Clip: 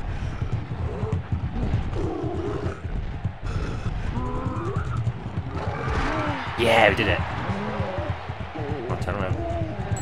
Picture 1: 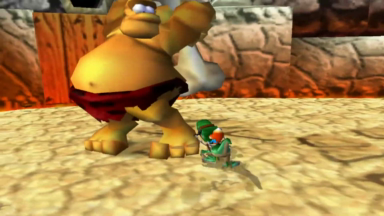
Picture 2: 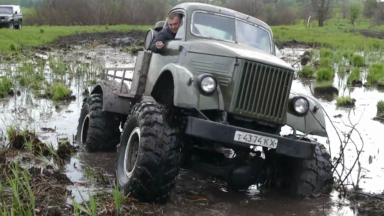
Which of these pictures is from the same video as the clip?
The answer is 1